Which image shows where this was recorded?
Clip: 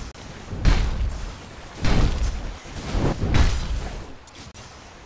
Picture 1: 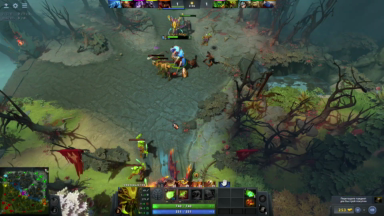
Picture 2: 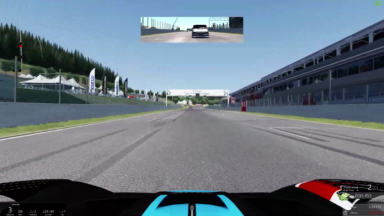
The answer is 1